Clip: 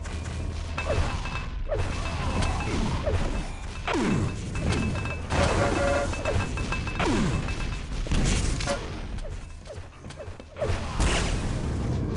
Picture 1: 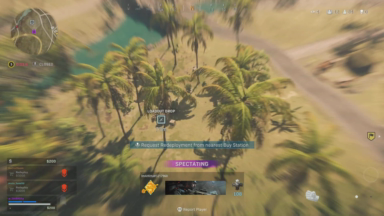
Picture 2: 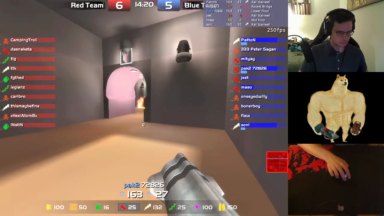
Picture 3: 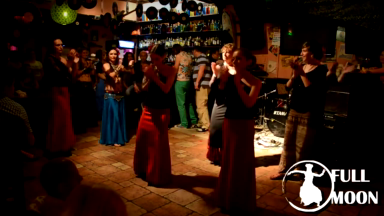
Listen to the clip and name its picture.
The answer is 2